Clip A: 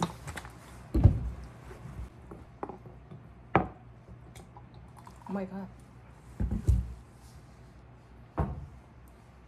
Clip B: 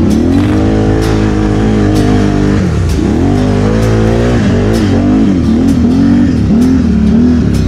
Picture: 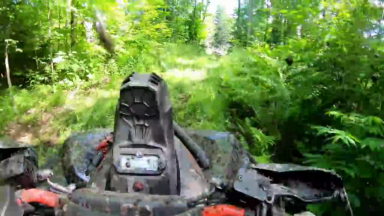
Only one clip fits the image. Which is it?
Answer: B